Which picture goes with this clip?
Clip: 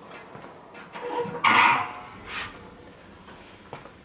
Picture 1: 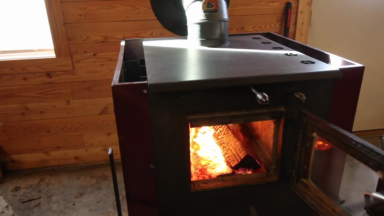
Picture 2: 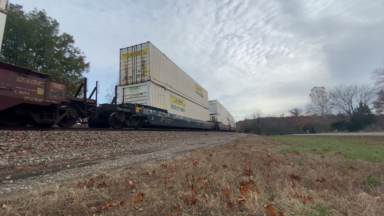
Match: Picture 1